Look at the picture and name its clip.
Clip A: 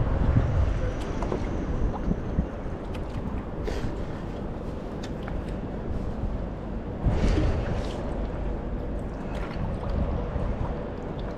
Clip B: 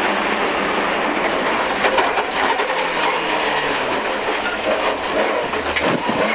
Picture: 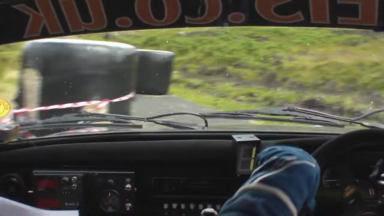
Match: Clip B